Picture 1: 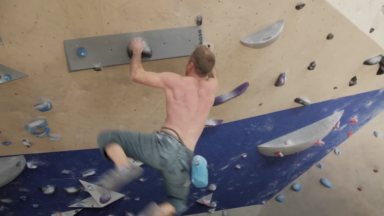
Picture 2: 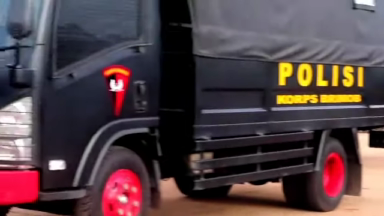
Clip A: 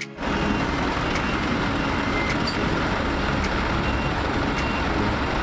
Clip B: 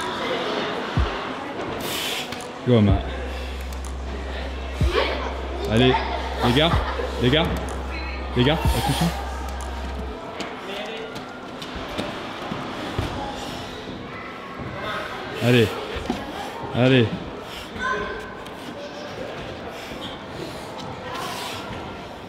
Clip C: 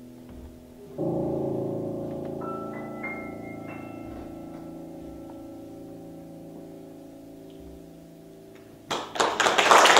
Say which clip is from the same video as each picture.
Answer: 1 B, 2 A